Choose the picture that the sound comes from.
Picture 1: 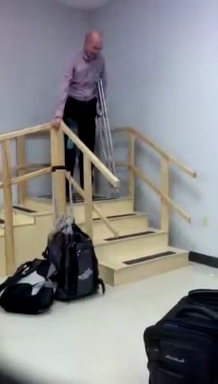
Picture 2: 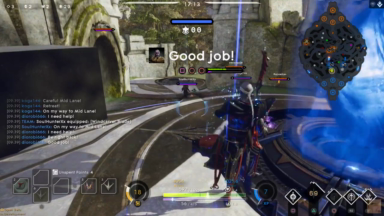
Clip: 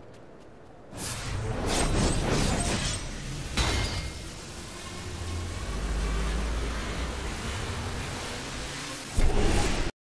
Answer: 2